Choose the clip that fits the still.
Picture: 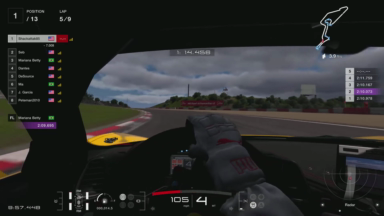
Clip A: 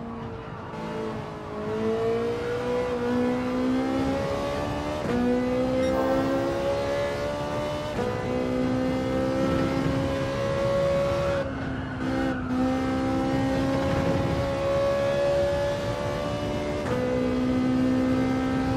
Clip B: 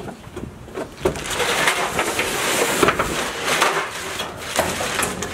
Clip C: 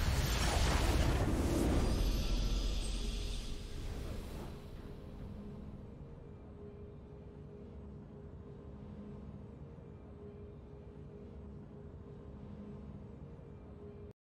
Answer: A